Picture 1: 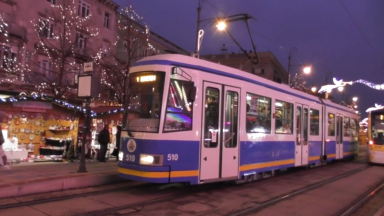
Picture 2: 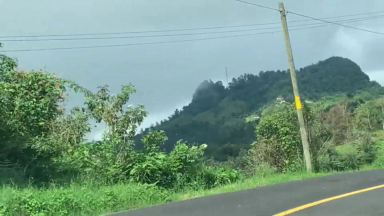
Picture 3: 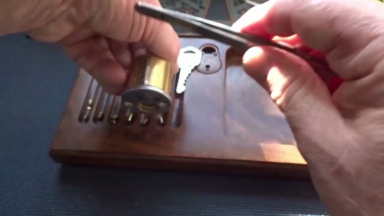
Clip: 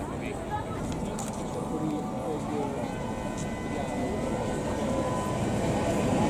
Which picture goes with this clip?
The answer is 1